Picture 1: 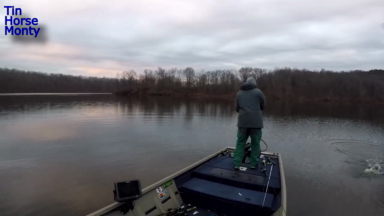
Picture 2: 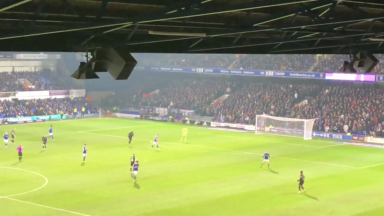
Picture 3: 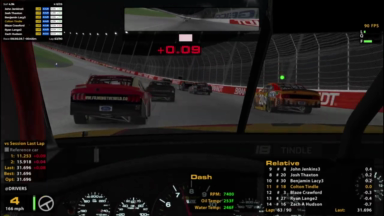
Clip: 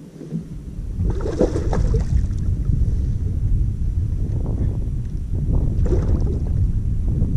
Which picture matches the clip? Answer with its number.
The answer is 1